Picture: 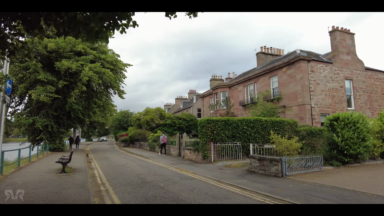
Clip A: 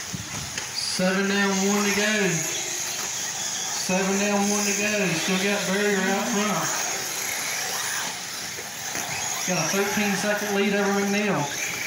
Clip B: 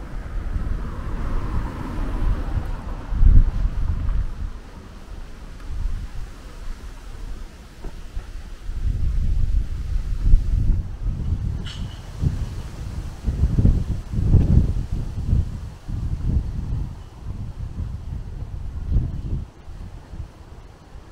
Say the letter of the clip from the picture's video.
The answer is B